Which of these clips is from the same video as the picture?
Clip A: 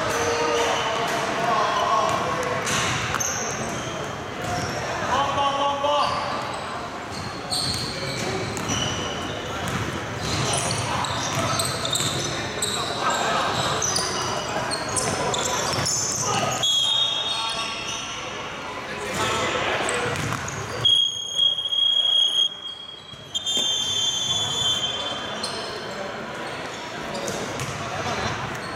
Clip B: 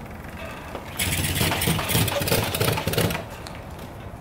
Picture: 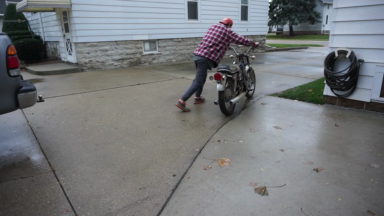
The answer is B